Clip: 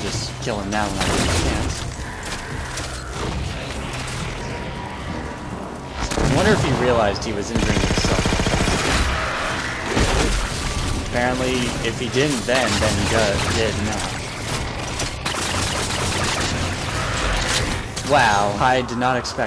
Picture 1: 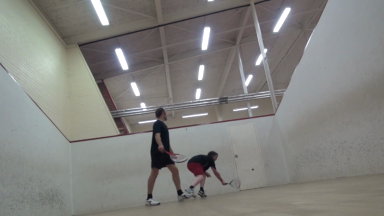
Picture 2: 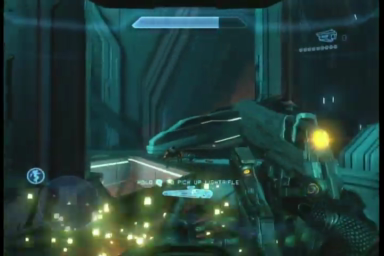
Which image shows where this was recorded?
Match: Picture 2